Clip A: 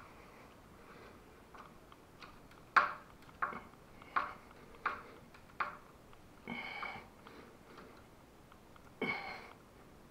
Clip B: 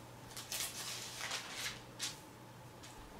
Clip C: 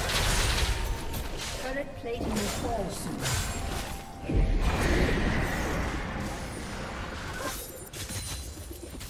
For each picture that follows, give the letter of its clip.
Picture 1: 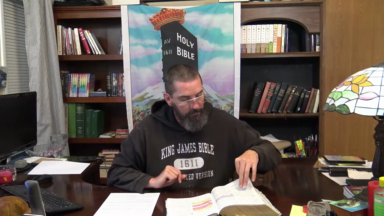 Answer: B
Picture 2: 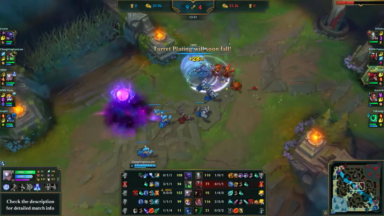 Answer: C